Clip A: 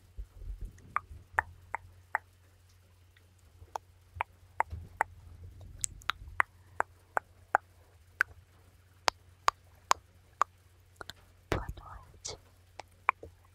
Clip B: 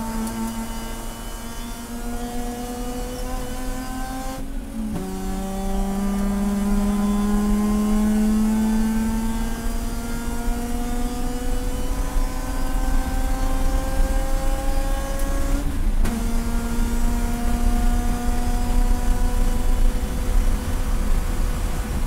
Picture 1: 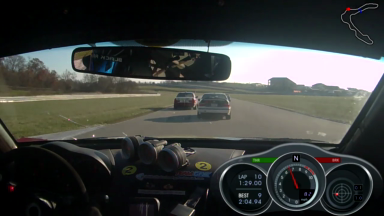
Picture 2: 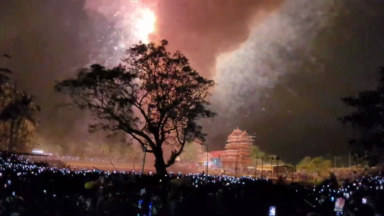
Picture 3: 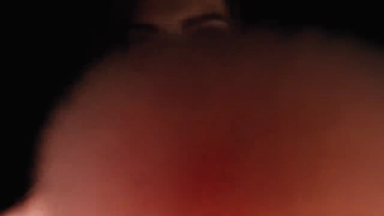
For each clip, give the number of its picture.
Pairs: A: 3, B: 1